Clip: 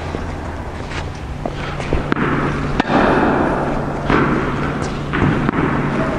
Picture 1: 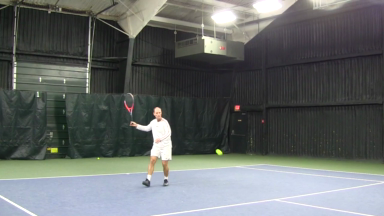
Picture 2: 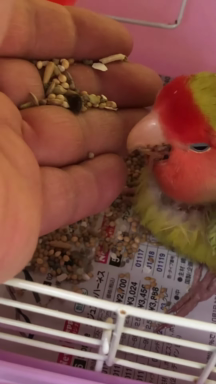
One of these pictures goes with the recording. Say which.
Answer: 1